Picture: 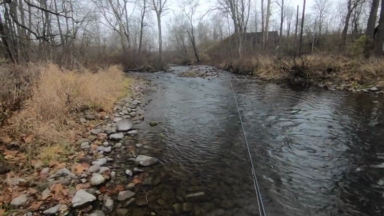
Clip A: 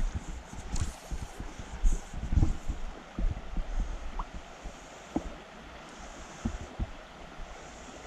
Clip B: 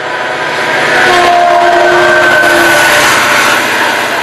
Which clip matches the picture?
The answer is A